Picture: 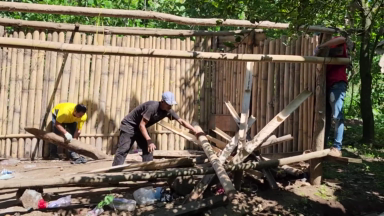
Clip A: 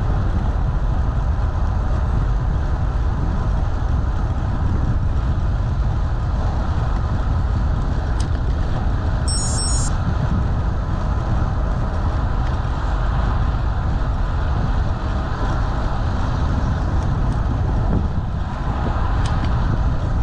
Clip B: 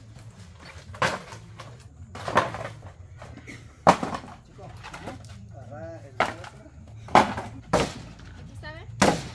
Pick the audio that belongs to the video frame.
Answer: B